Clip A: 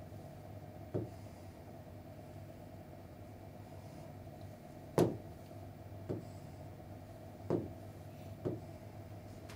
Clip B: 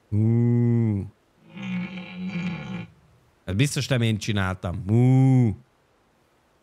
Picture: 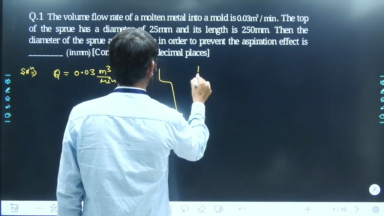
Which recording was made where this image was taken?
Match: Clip A